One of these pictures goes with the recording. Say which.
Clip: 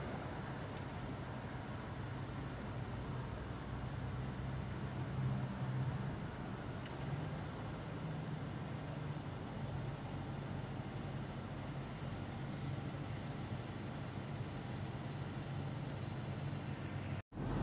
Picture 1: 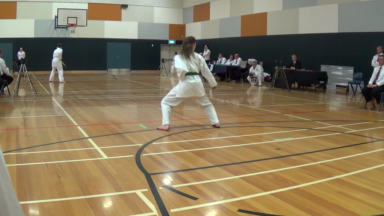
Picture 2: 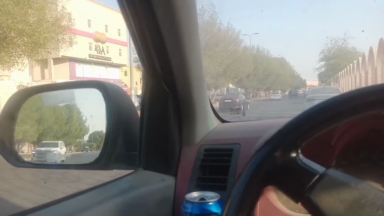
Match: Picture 2